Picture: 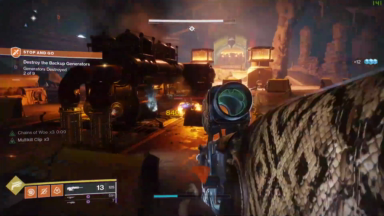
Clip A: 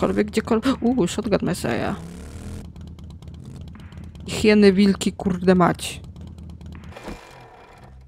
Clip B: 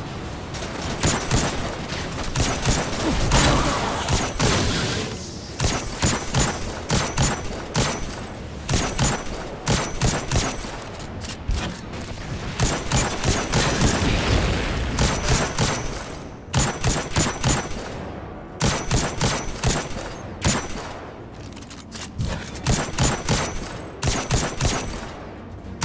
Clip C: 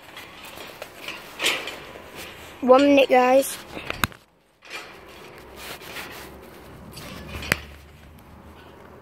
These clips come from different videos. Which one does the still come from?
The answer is B